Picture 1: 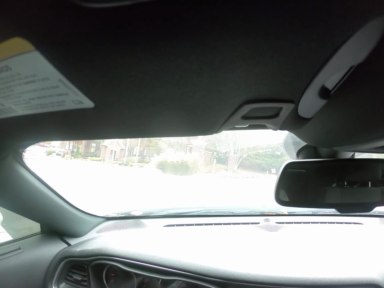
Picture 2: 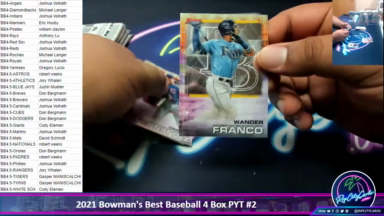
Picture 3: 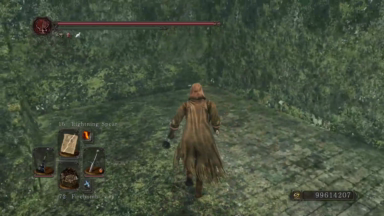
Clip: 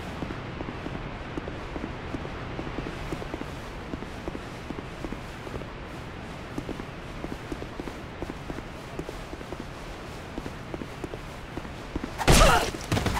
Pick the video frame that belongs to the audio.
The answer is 3